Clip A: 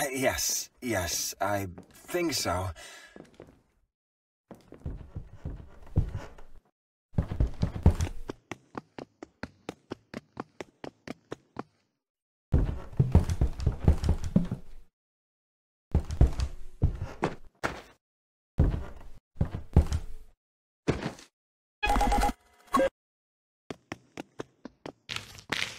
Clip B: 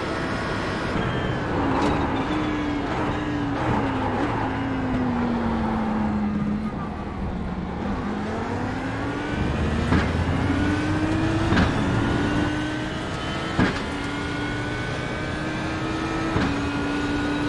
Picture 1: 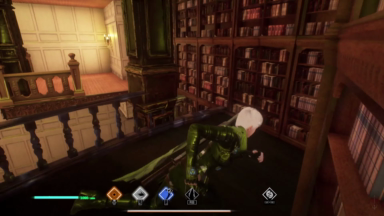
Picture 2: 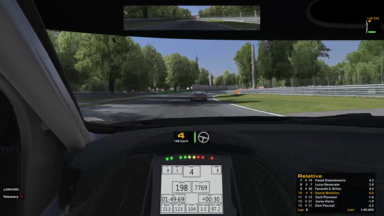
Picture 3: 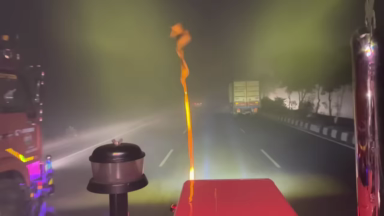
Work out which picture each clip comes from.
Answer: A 1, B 2